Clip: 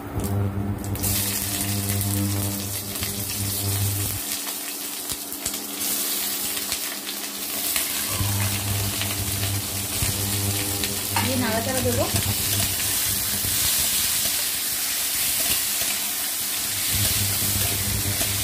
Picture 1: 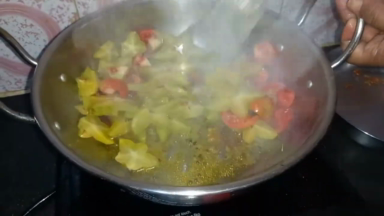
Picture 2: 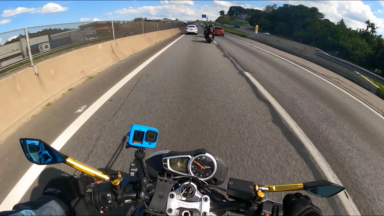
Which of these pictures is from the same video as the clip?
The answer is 1